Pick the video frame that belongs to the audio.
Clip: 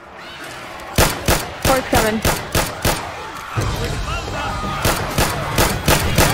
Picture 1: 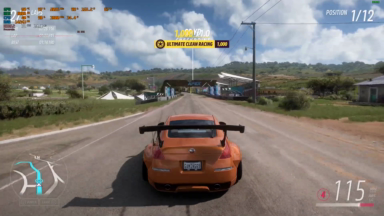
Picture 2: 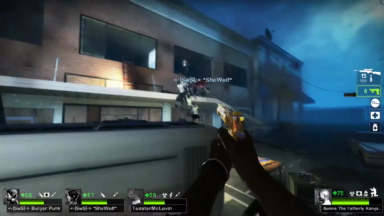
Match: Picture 2